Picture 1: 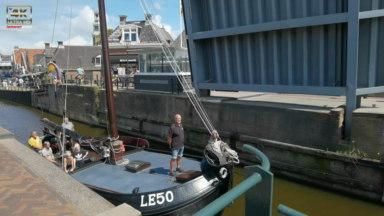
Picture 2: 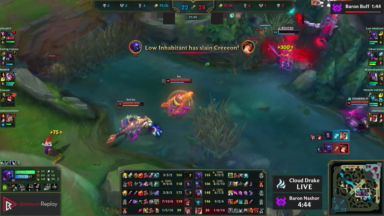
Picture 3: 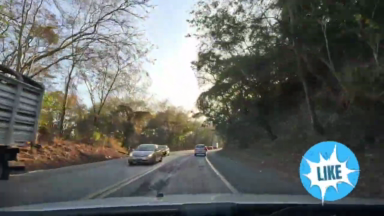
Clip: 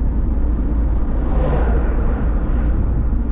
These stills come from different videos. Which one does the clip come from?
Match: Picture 3